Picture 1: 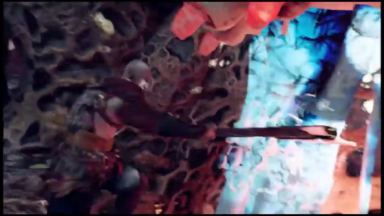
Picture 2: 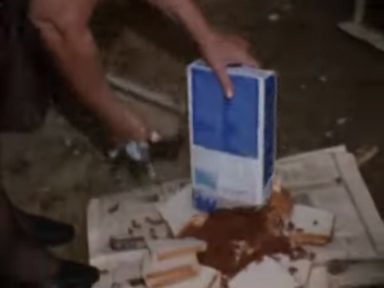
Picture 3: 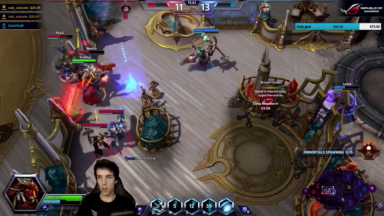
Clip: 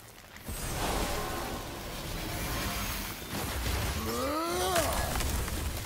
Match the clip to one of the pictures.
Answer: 1